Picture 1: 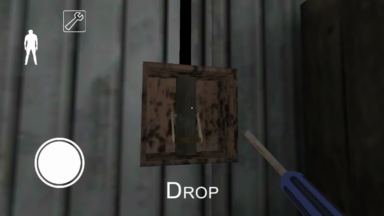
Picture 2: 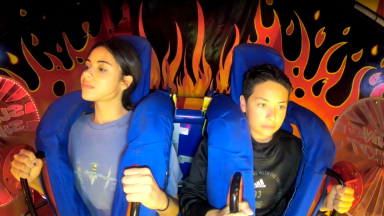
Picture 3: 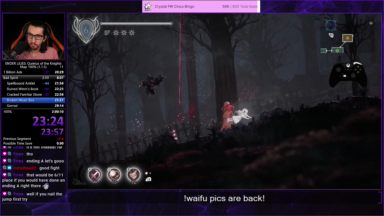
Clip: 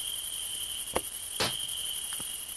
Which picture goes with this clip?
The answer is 1